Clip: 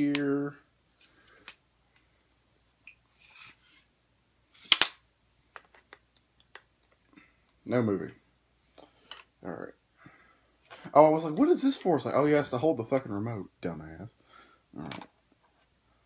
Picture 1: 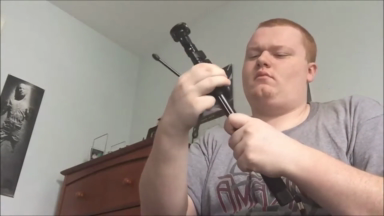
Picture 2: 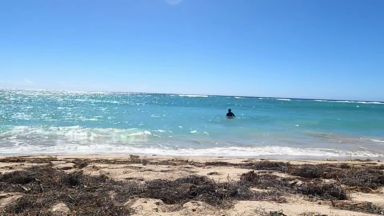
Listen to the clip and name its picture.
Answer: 1